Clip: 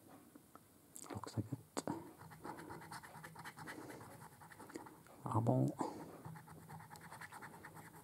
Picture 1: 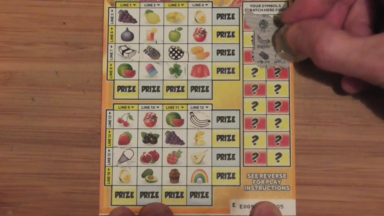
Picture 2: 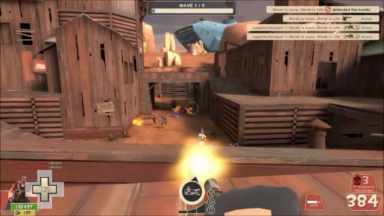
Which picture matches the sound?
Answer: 1